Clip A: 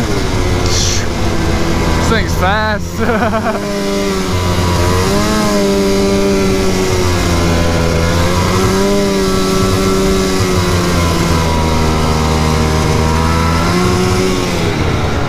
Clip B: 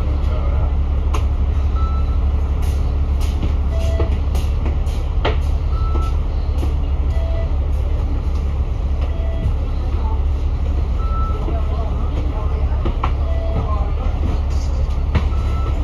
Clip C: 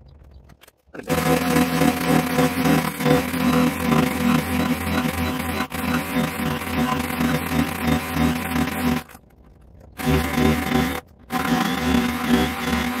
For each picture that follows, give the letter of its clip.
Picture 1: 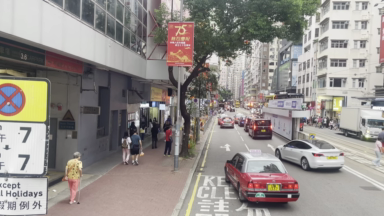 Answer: B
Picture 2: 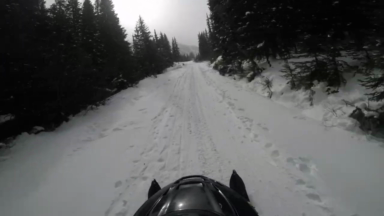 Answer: A